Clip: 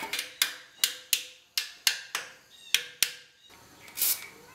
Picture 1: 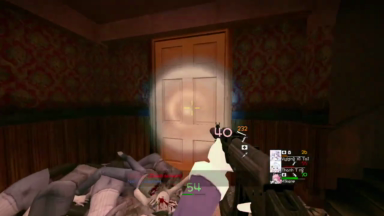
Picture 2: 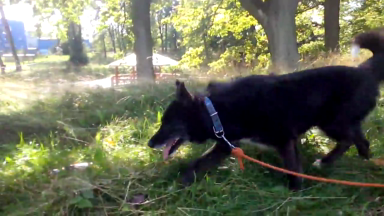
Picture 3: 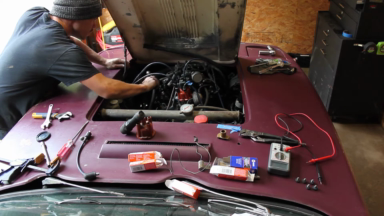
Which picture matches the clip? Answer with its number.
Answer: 3